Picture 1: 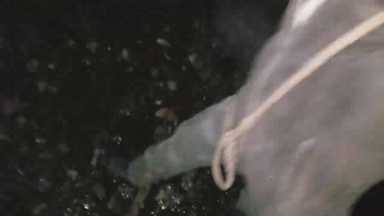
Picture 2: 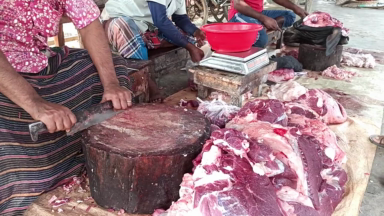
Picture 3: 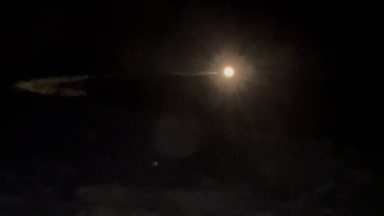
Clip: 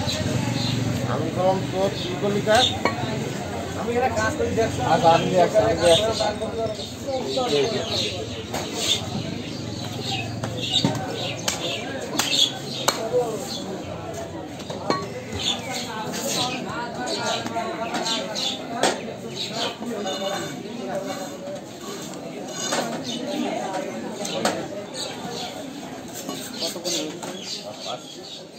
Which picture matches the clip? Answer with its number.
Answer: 2